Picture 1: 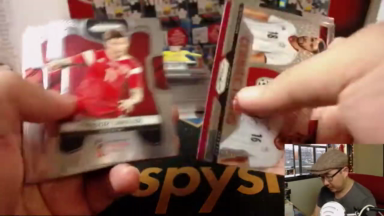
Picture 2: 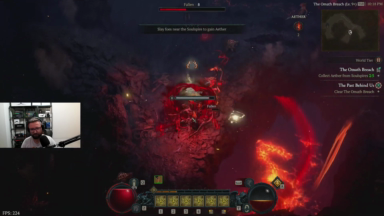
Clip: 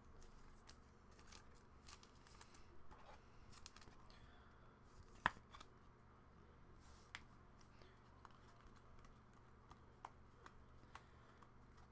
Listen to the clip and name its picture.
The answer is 1